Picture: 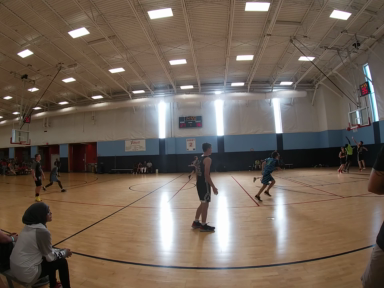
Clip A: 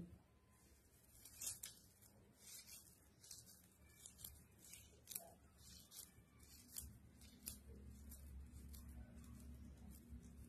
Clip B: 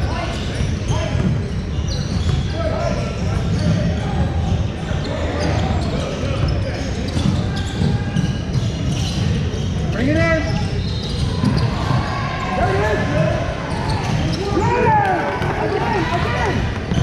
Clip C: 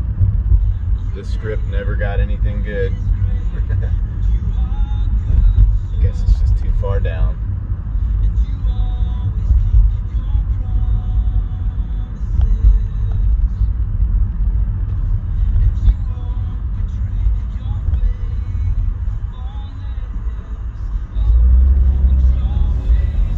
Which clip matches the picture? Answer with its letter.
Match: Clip B